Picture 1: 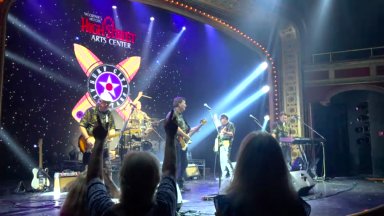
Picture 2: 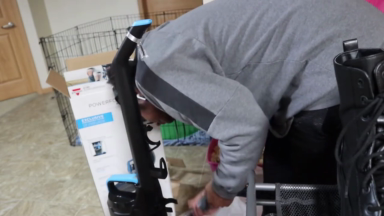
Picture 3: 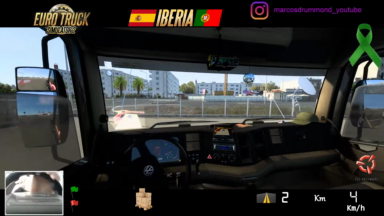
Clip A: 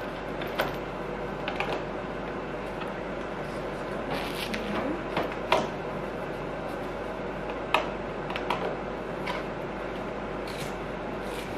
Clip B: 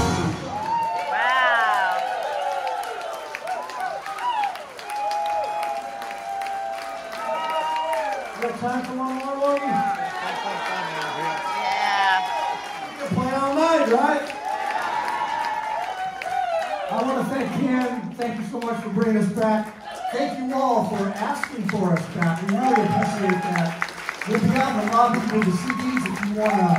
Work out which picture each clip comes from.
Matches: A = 2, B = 1